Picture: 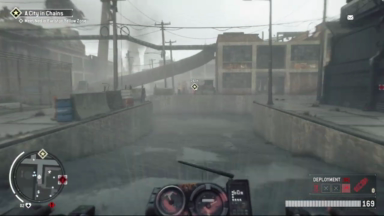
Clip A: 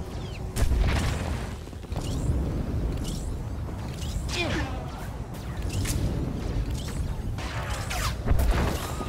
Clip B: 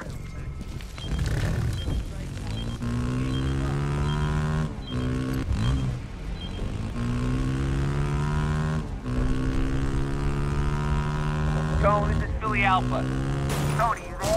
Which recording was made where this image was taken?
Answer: B